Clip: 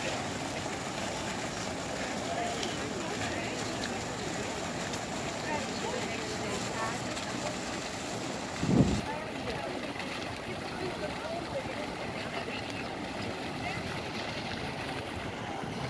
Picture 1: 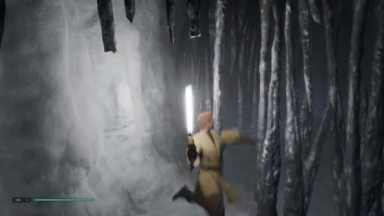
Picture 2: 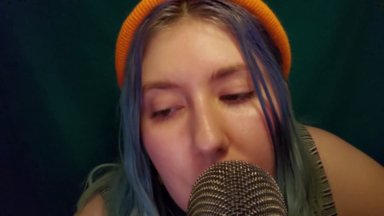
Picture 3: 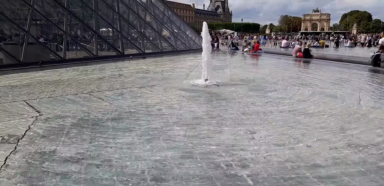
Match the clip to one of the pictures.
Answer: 3